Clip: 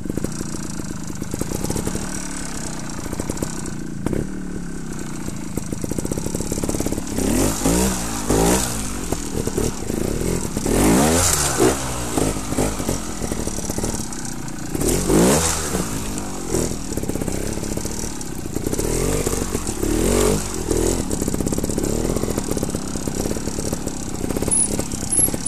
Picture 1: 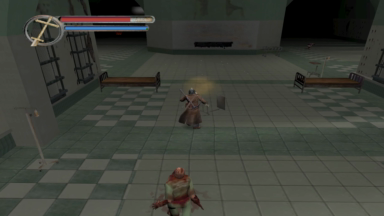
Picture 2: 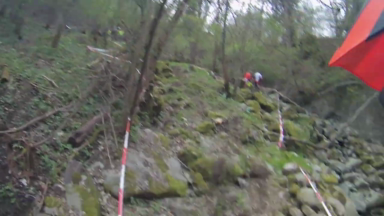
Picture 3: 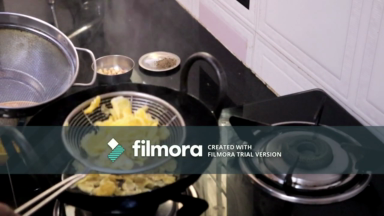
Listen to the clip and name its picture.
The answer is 2